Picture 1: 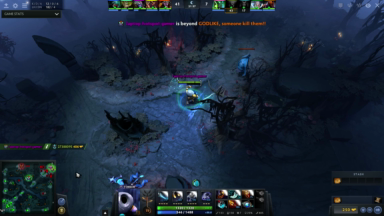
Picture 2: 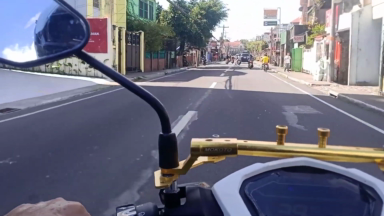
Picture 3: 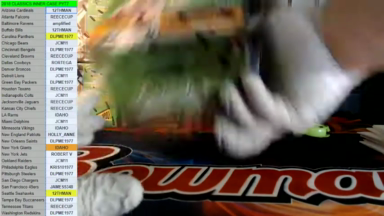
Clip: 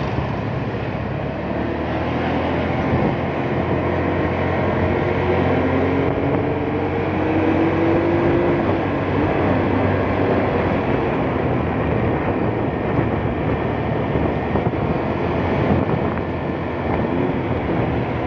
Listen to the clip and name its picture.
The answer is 2